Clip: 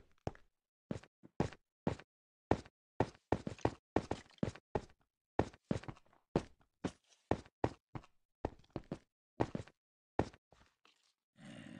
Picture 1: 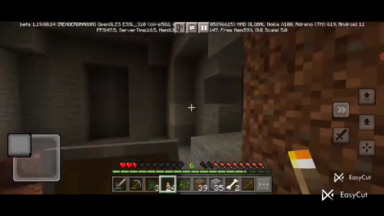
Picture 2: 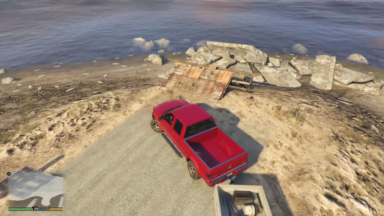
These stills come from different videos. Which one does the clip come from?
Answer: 1